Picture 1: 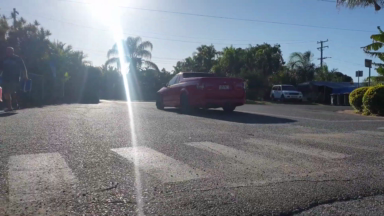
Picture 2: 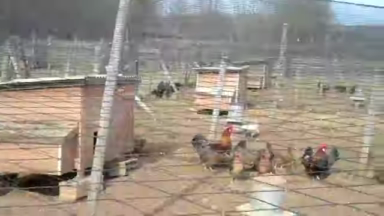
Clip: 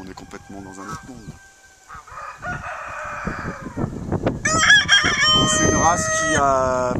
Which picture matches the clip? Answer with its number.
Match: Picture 2